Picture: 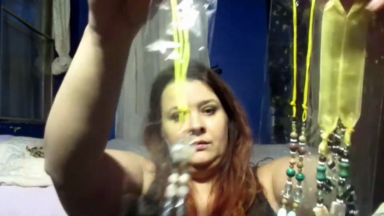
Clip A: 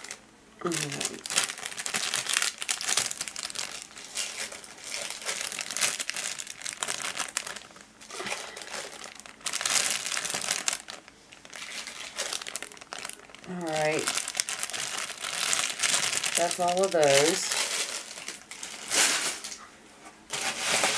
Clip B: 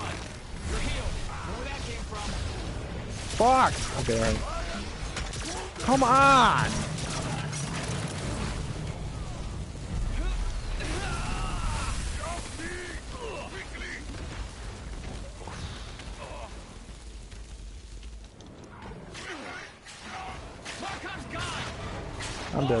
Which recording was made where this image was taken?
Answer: A